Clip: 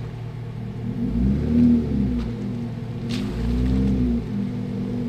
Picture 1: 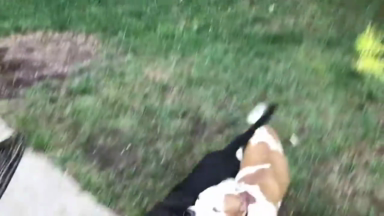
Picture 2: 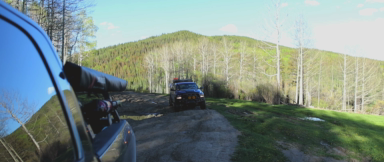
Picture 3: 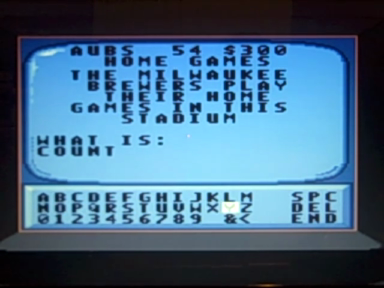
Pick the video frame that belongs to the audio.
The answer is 2